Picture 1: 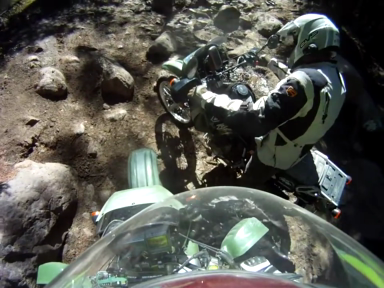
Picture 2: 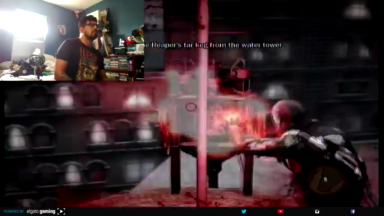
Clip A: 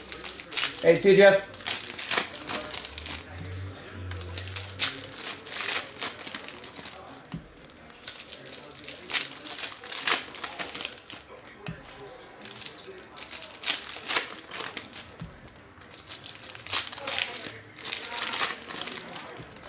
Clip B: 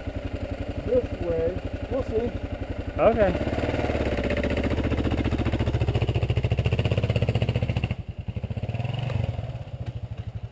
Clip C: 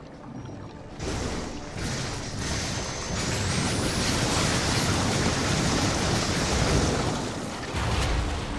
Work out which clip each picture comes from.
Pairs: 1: B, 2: C